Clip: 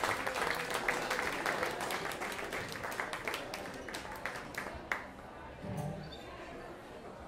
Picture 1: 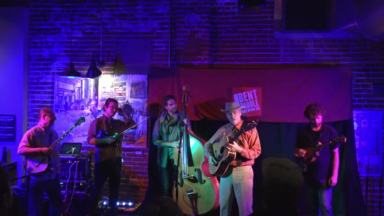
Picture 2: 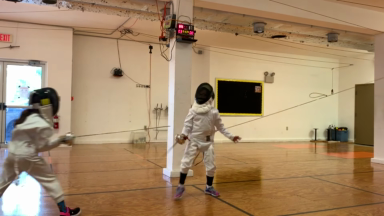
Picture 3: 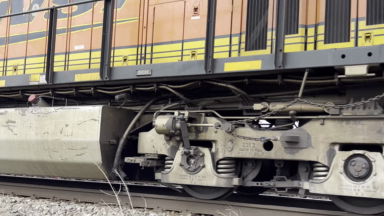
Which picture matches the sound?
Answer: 1